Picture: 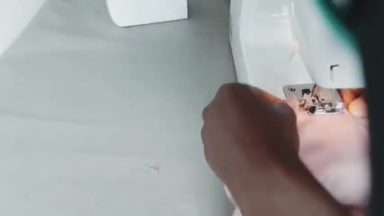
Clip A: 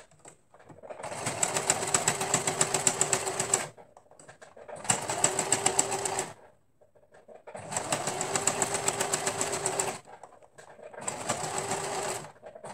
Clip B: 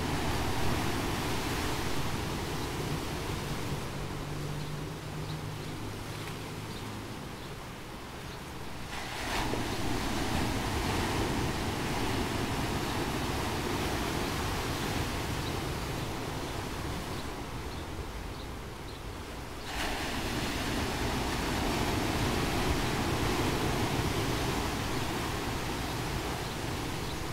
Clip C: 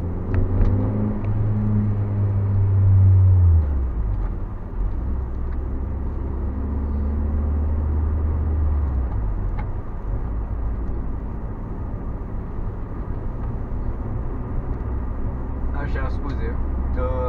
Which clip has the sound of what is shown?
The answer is A